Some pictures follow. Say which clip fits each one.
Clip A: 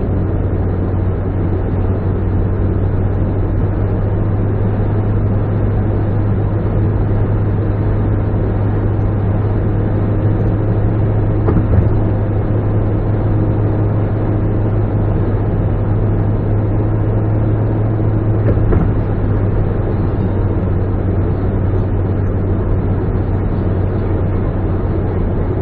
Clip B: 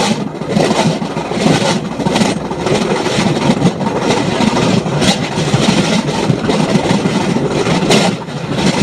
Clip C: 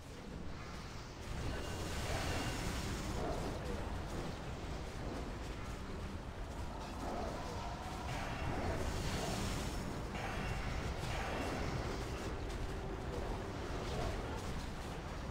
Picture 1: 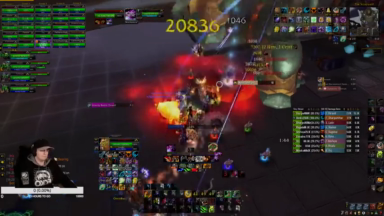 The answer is C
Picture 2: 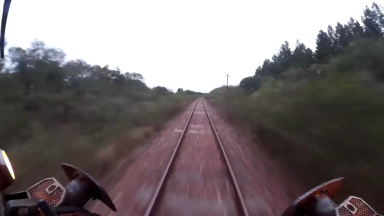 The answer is B